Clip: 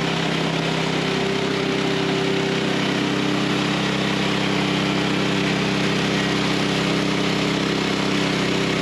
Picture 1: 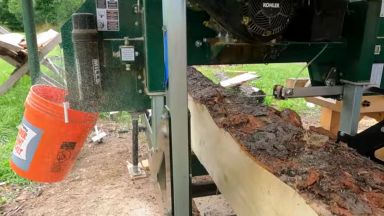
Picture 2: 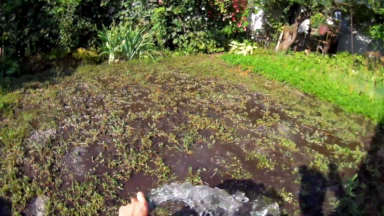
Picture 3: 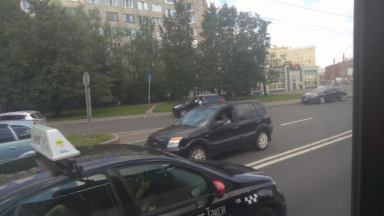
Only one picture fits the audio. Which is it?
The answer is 1